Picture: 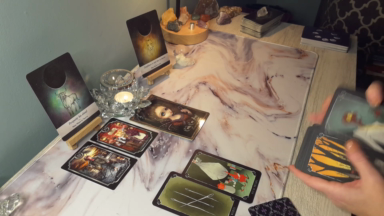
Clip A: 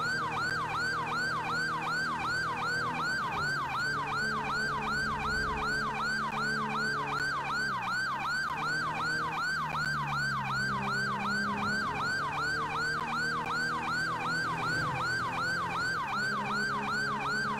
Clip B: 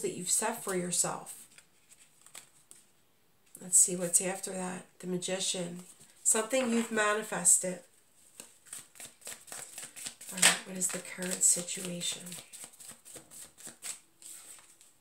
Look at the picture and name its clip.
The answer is B